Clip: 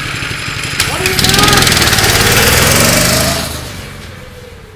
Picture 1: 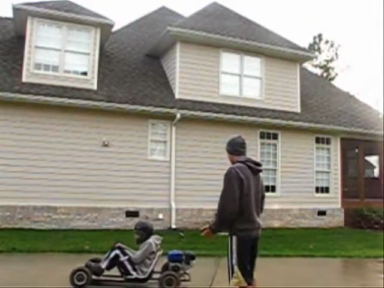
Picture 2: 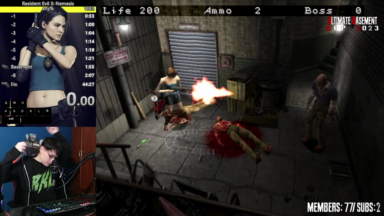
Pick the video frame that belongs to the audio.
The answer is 1